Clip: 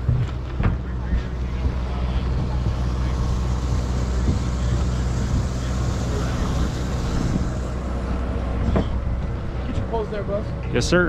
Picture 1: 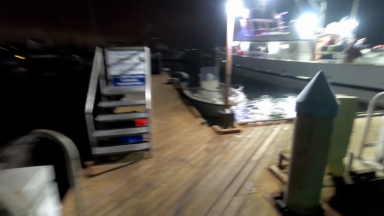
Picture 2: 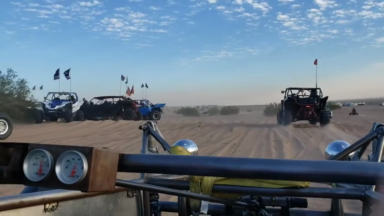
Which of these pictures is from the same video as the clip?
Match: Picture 1